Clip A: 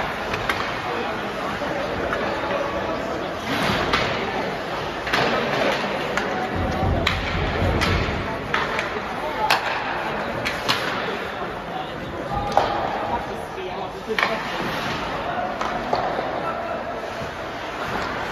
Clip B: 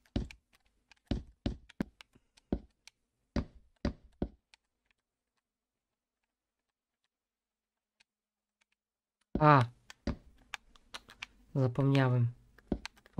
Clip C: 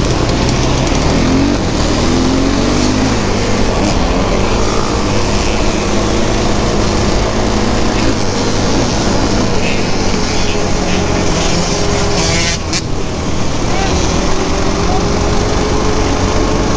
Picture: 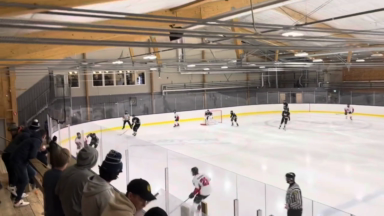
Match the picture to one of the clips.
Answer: A